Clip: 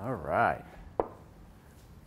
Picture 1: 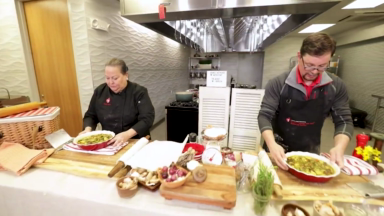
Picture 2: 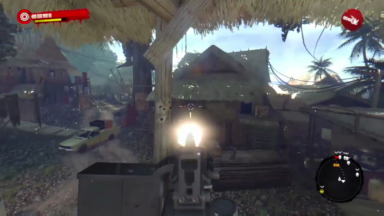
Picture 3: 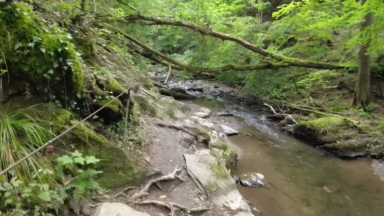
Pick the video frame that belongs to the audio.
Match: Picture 1